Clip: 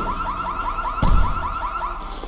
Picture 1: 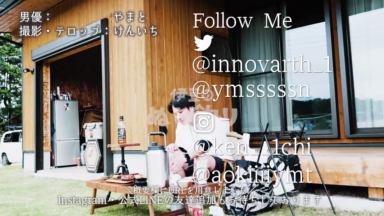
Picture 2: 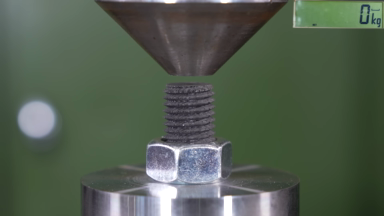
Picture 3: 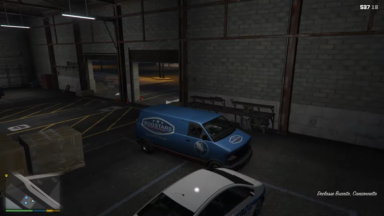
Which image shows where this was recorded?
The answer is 3